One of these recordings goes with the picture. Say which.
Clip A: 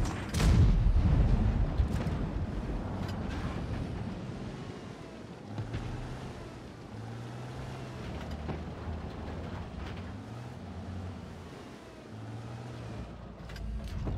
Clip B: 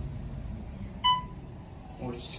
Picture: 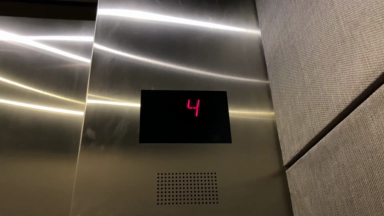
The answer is B